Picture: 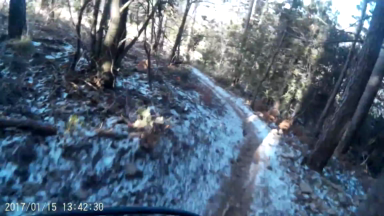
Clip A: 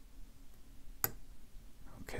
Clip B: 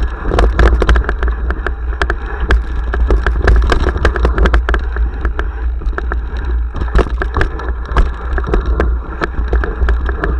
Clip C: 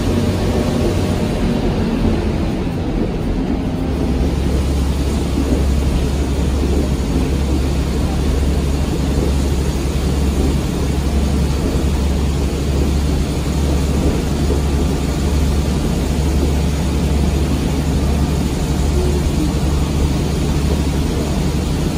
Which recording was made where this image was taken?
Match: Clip B